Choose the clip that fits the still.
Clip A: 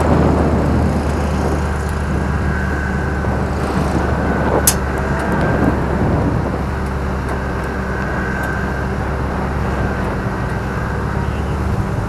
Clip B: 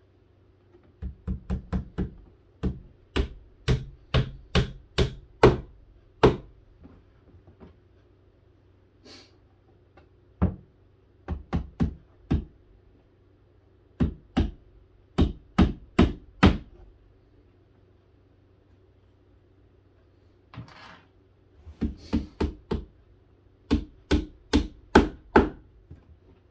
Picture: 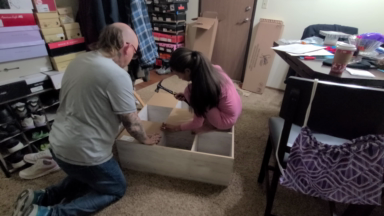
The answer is B